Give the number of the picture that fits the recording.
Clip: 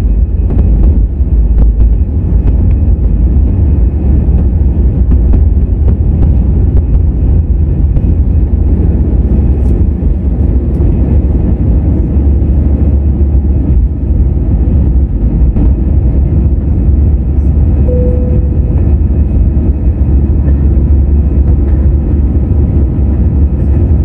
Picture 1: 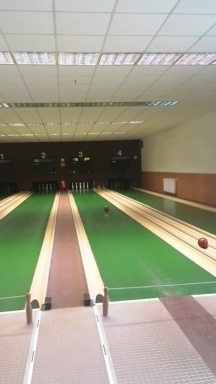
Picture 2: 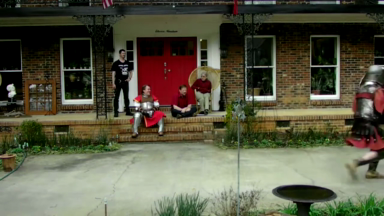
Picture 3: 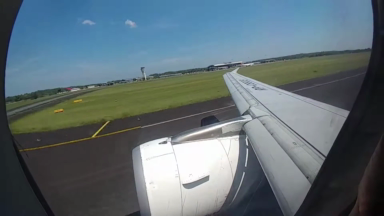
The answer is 3